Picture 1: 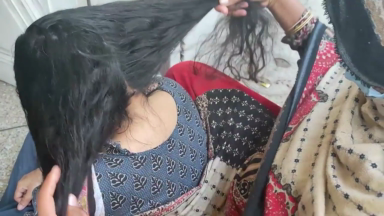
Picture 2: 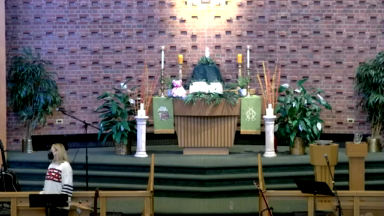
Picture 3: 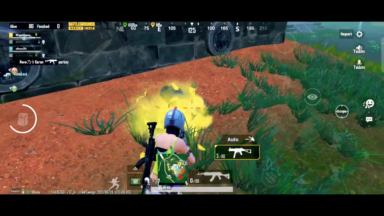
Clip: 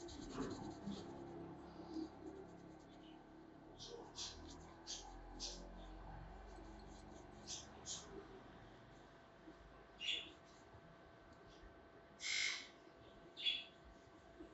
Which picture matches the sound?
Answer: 1